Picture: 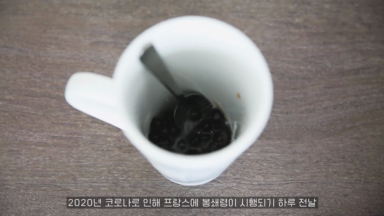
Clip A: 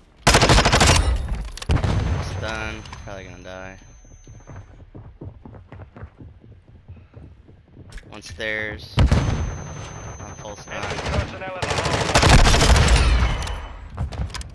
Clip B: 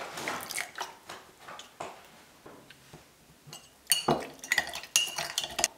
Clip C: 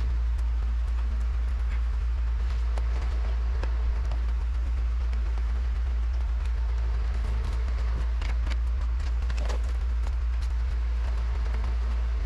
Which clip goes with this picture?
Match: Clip B